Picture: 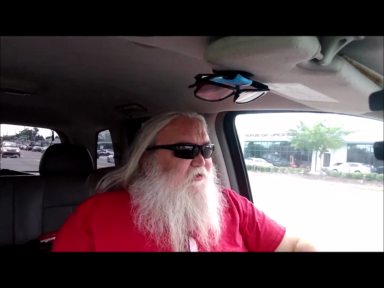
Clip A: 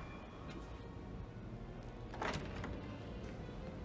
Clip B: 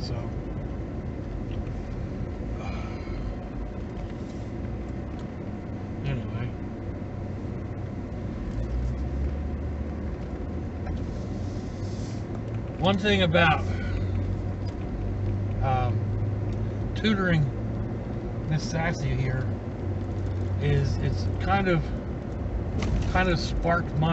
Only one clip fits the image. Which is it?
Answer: B